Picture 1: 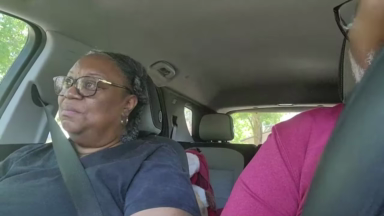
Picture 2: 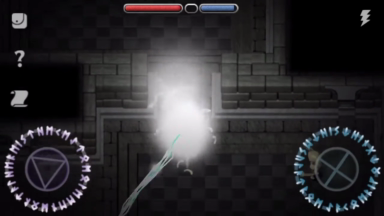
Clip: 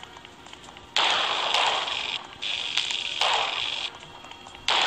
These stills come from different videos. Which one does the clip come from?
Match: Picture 2